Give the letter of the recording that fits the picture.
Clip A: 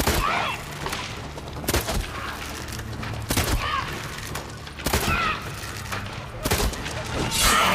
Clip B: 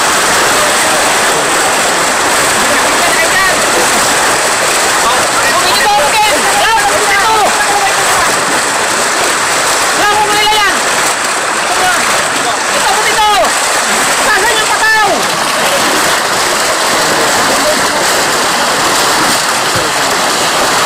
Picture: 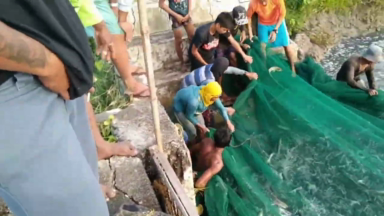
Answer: B